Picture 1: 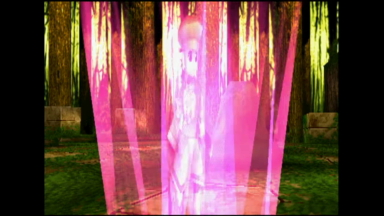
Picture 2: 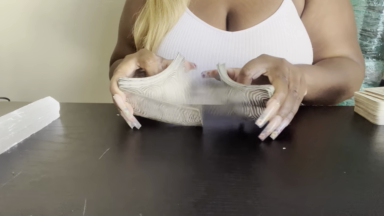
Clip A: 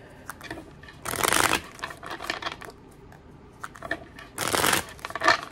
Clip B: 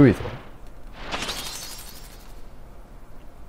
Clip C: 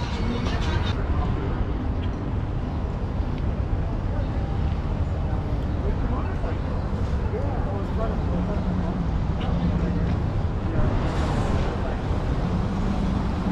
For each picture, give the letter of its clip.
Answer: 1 B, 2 A